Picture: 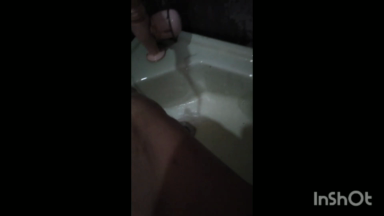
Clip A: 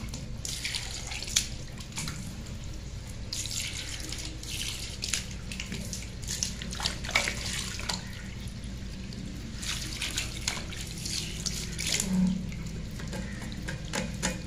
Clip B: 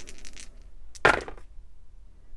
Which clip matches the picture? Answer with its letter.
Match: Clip A